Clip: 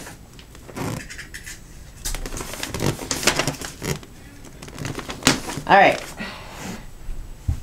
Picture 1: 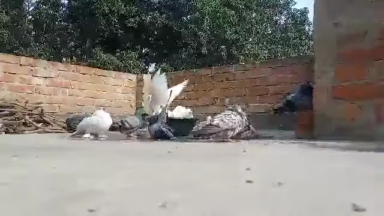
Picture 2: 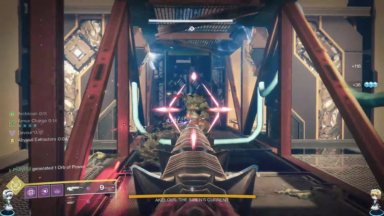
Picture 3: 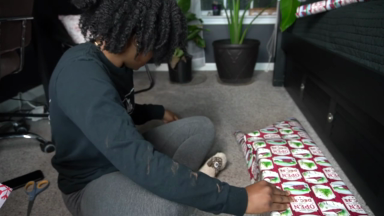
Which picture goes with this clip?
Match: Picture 3